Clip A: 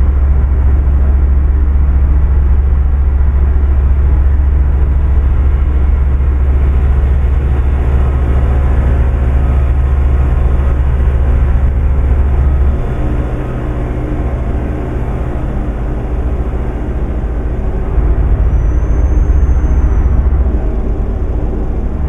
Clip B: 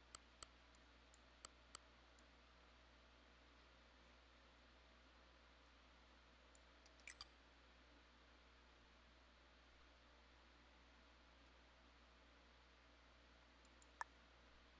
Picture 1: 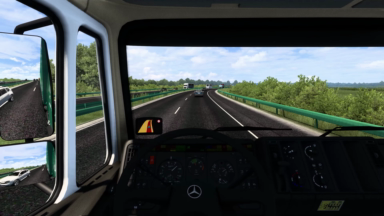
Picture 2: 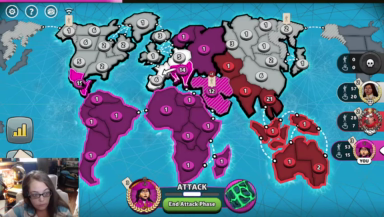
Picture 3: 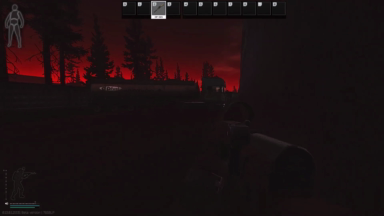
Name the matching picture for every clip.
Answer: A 1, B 2